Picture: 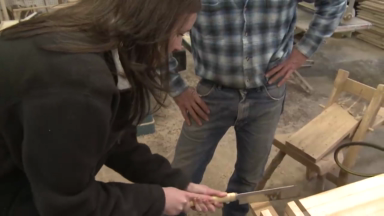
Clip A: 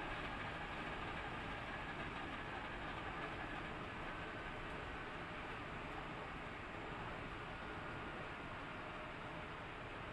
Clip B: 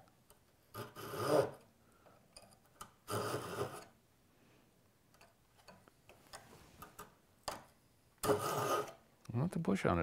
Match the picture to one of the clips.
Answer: B